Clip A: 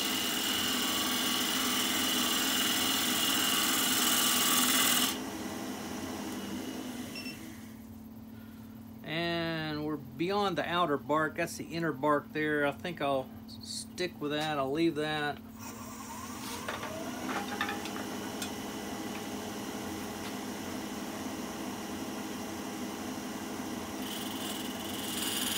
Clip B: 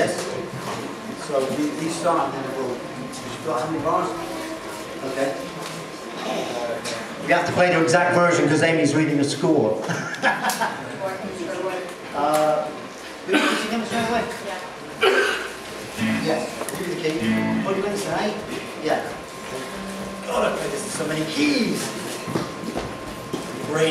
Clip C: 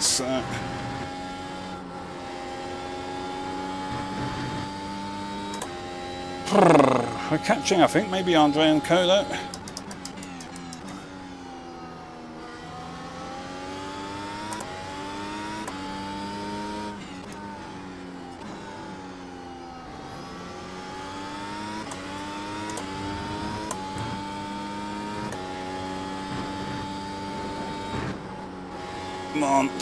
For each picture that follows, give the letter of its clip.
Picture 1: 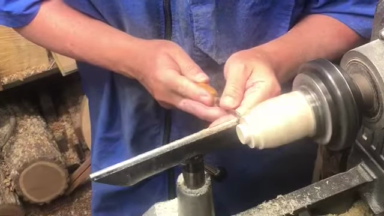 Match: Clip A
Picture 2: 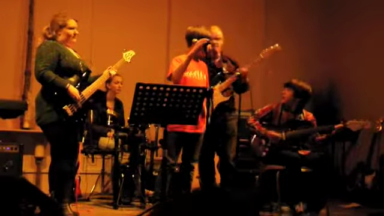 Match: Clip B